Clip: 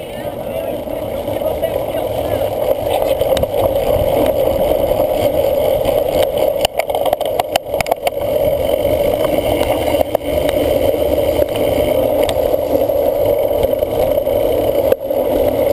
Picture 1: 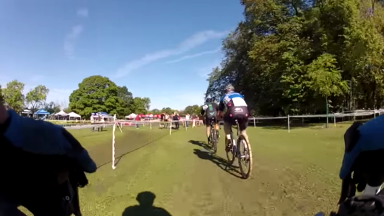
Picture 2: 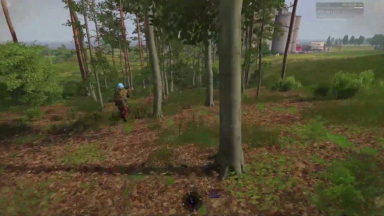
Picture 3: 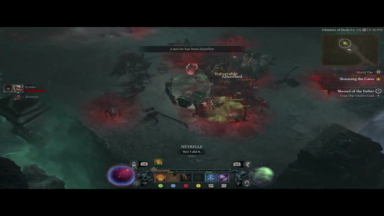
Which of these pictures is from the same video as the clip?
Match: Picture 1